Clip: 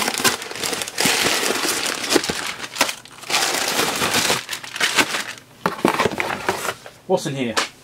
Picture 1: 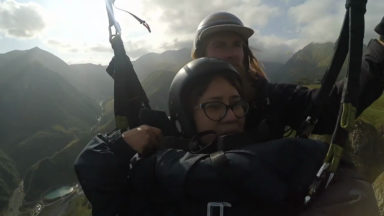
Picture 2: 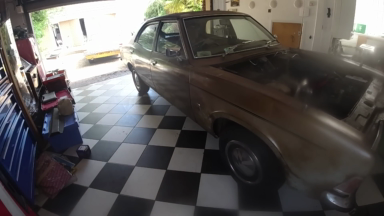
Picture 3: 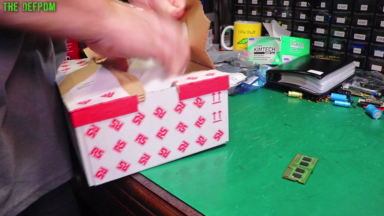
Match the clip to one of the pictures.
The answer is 3